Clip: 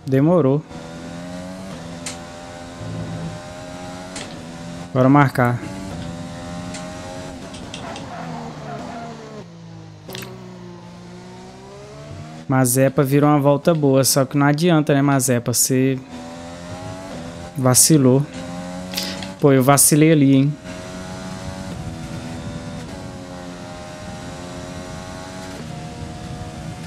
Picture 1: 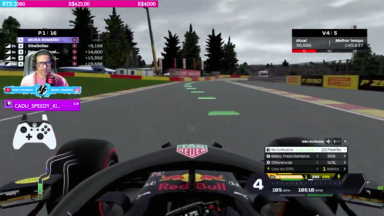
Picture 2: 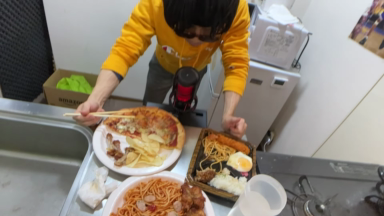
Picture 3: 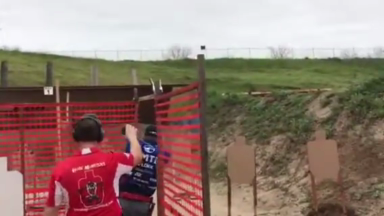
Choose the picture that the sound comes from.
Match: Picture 1